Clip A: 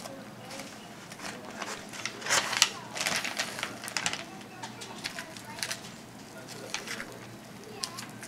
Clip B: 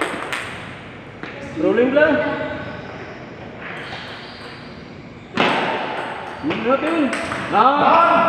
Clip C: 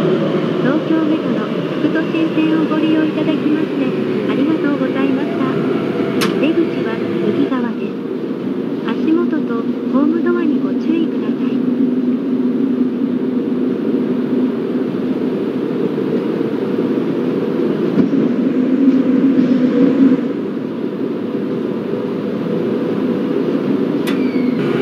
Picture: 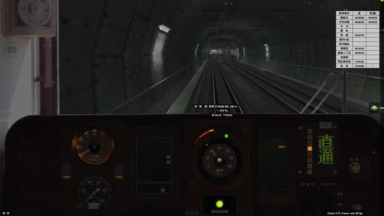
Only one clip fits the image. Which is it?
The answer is C